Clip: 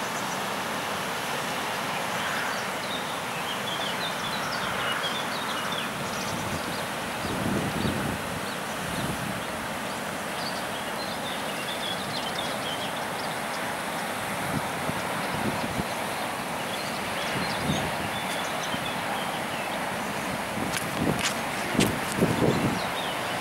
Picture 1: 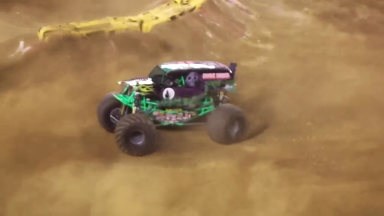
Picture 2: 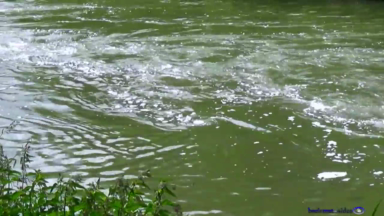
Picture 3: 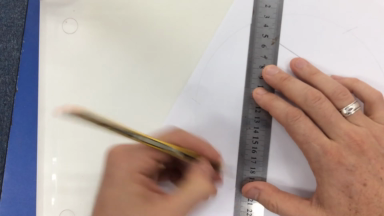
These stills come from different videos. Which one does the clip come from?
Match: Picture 2